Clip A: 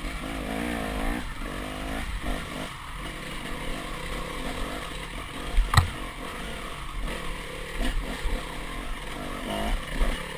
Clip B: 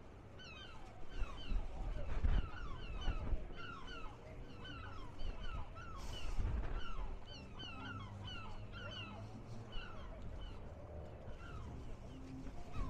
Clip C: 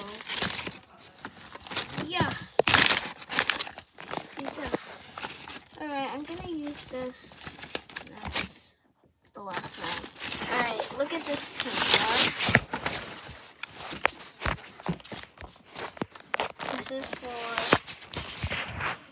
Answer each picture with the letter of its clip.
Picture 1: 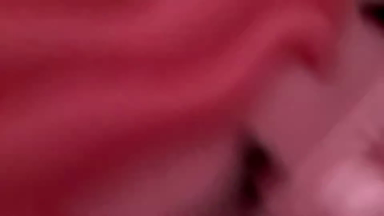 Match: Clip C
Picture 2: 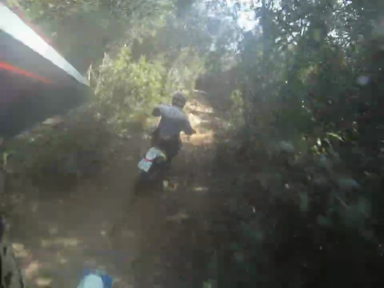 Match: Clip A